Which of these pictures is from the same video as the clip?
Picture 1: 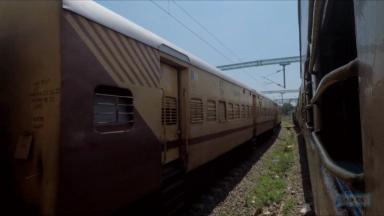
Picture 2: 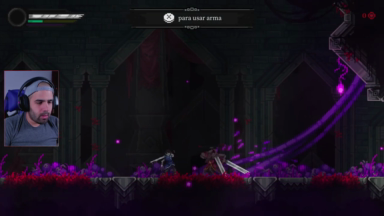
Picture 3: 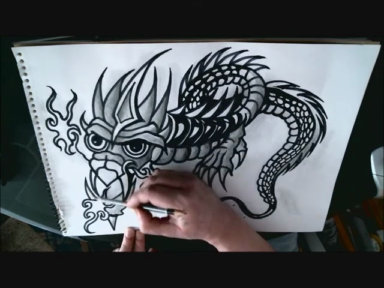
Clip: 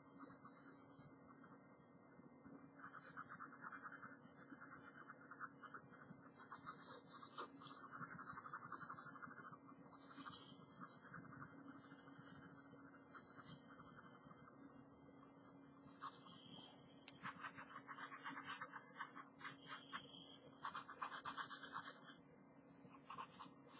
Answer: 3